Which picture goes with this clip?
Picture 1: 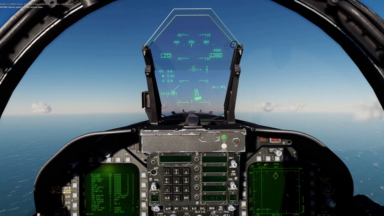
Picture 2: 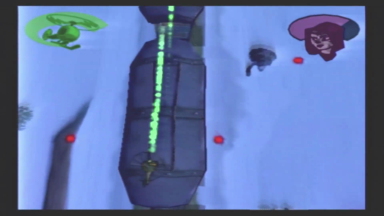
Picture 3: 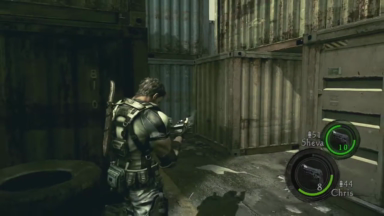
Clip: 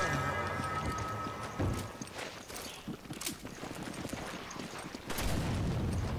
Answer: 3